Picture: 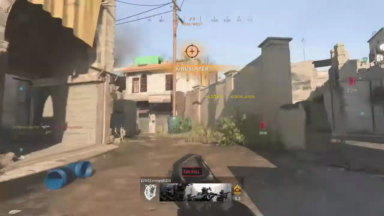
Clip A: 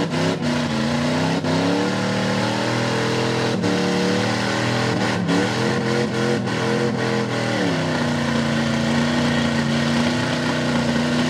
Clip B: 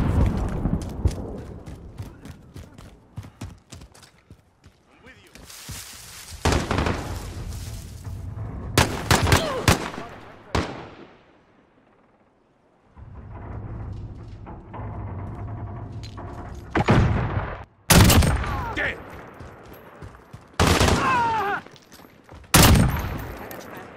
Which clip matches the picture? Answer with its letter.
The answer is B